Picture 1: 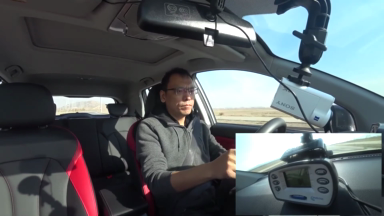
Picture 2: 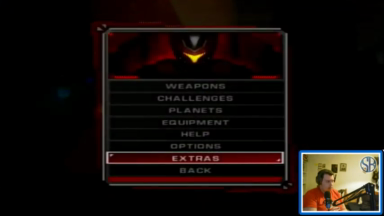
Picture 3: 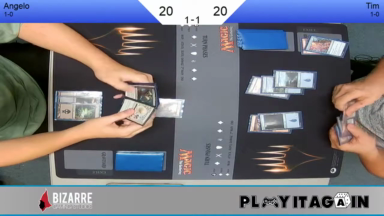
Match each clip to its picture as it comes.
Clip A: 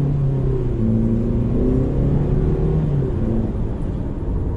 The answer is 1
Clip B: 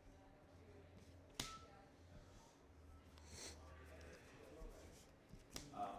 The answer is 3